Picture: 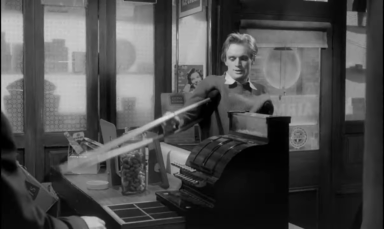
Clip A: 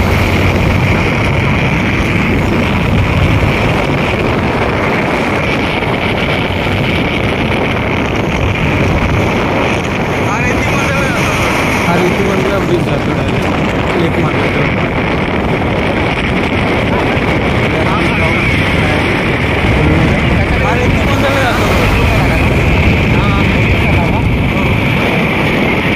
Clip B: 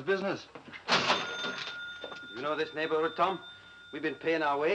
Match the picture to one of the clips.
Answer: B